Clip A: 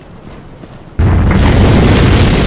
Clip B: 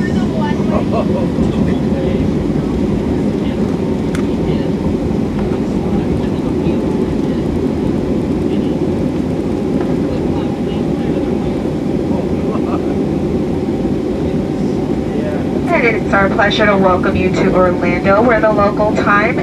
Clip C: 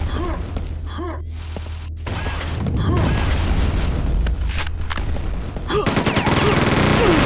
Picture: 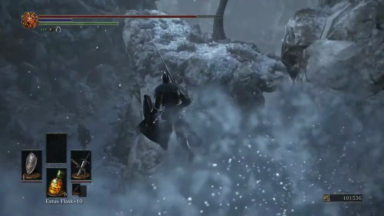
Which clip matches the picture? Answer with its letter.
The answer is A